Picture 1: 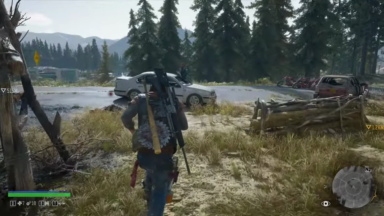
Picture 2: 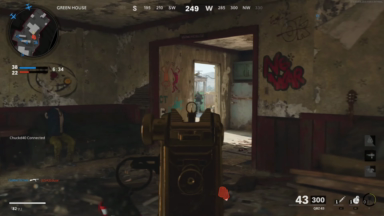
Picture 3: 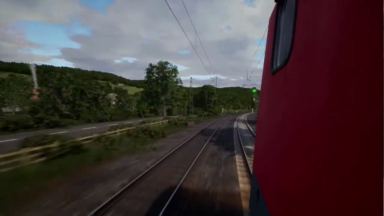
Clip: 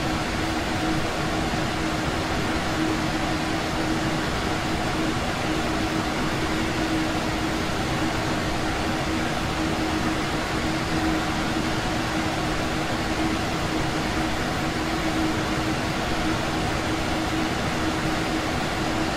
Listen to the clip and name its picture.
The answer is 3